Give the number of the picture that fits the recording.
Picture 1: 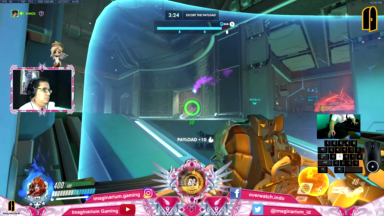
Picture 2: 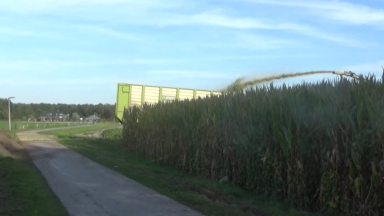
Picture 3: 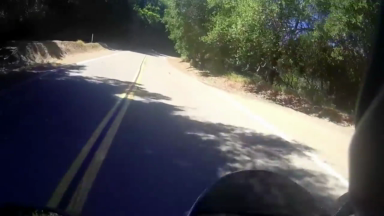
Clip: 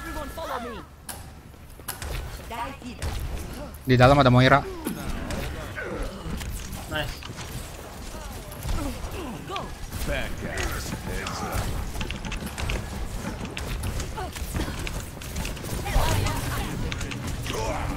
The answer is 1